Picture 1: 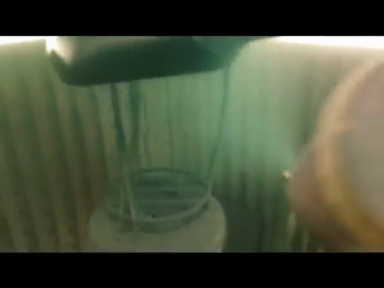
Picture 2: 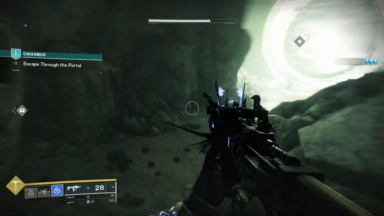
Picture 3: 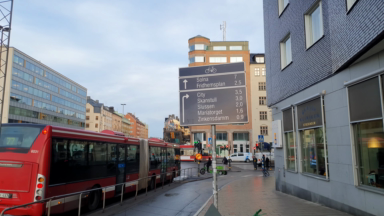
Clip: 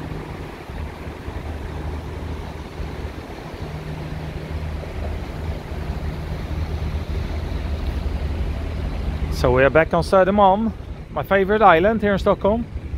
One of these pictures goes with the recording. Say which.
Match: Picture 3